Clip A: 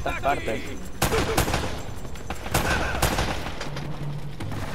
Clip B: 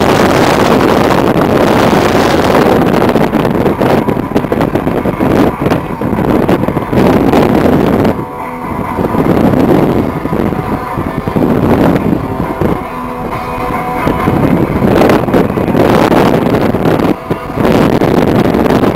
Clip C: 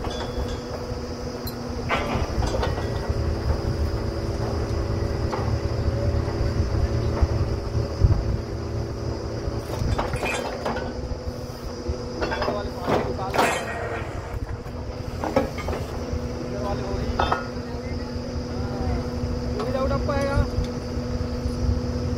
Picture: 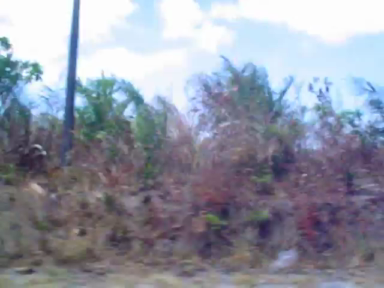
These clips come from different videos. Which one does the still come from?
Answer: B